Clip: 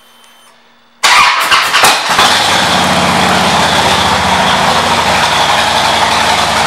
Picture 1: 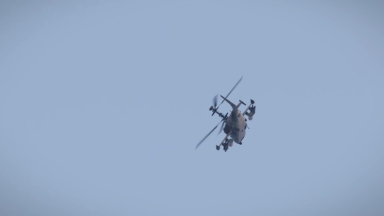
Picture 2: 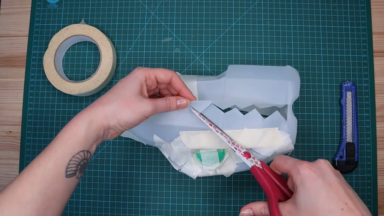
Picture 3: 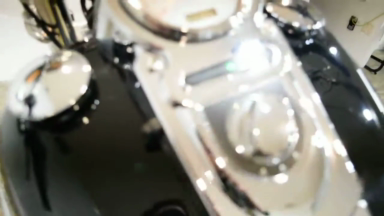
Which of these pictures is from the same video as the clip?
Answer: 3